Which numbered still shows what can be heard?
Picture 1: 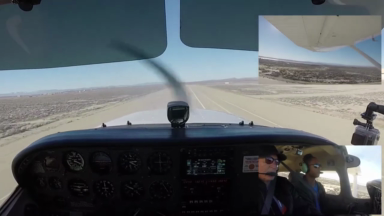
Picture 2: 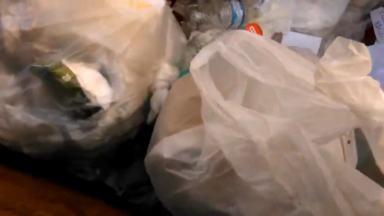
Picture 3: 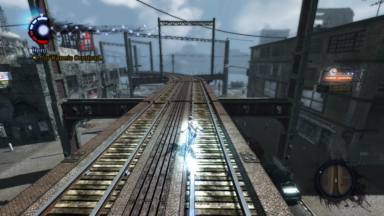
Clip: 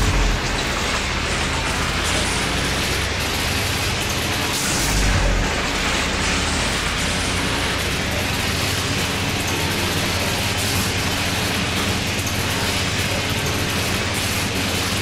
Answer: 3